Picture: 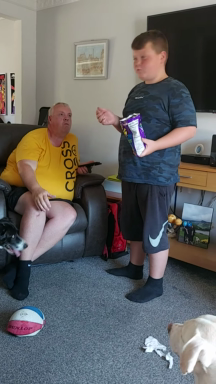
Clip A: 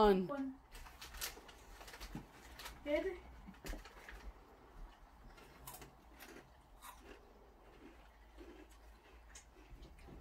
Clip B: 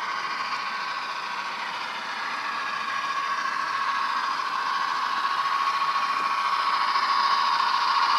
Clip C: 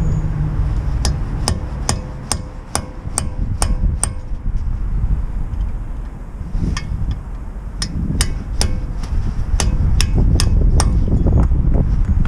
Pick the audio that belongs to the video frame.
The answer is A